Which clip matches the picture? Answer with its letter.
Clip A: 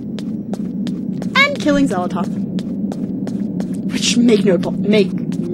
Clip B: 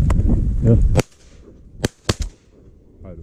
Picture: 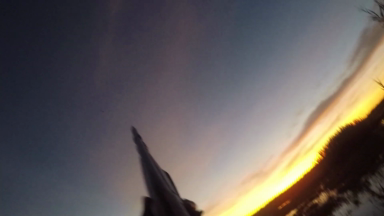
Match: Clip B